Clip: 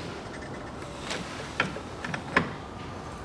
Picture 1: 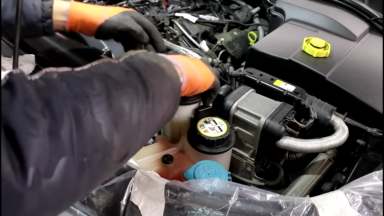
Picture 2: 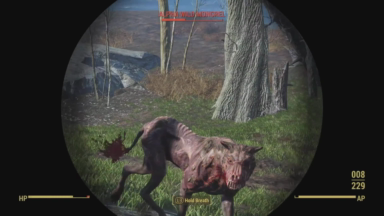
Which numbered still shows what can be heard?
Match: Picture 1